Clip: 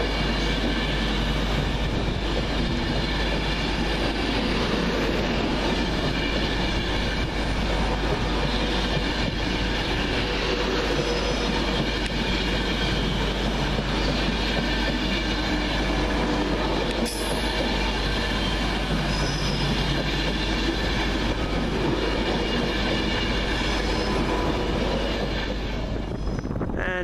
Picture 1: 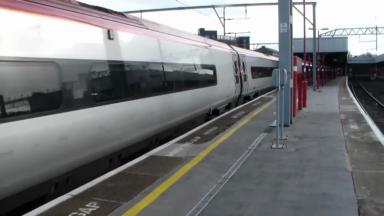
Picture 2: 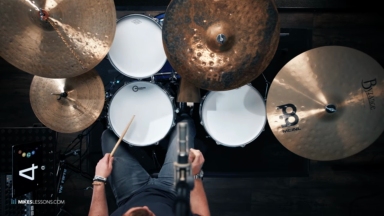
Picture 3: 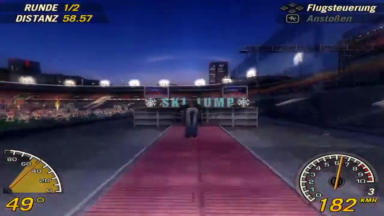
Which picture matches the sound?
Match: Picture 1